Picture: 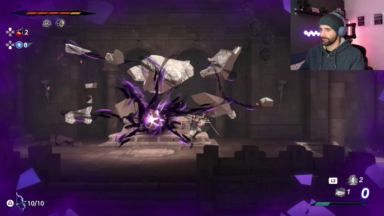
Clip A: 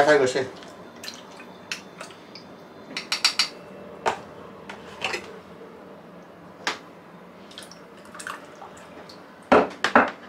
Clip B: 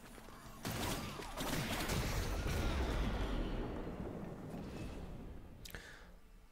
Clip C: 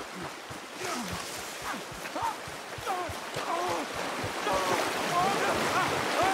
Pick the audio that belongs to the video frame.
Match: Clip B